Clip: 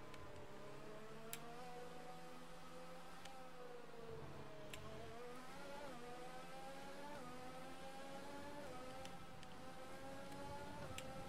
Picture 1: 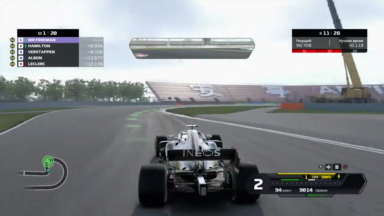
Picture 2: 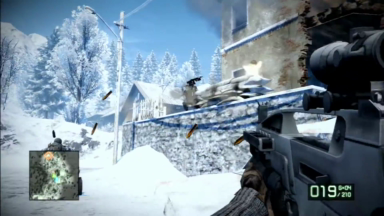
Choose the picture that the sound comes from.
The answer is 1